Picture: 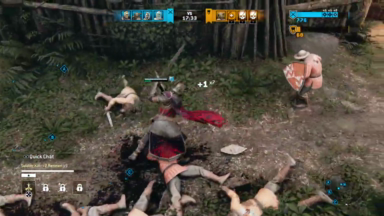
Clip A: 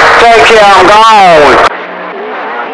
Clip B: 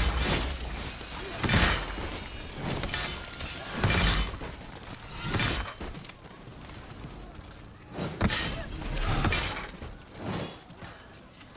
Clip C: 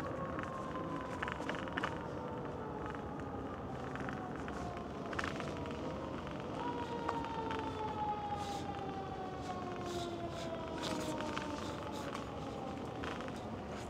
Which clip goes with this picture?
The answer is B